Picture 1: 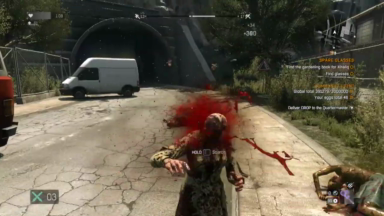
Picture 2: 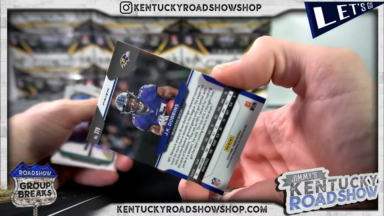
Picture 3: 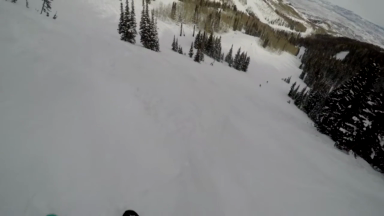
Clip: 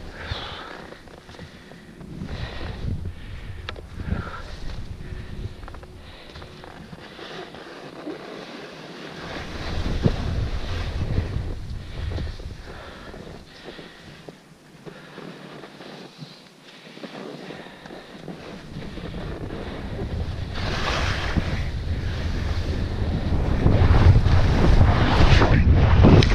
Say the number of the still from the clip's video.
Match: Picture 3